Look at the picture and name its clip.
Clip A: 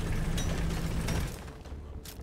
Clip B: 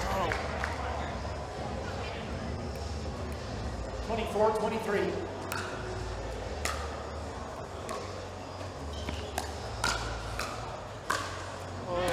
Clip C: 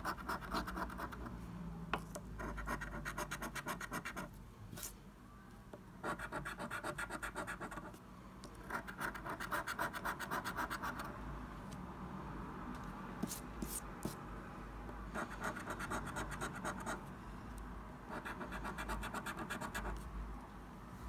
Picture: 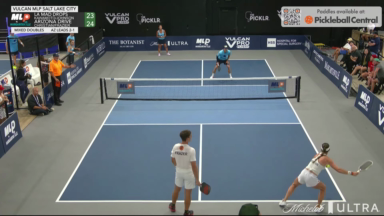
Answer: B